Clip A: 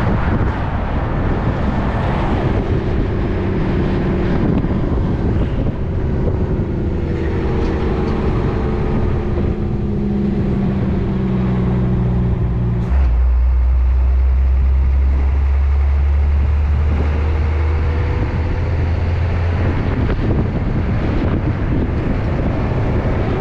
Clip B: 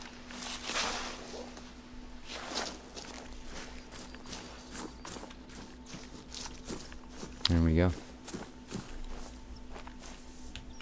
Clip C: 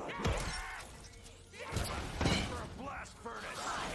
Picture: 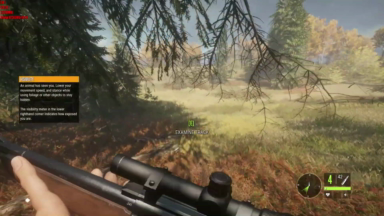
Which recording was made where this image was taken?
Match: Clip B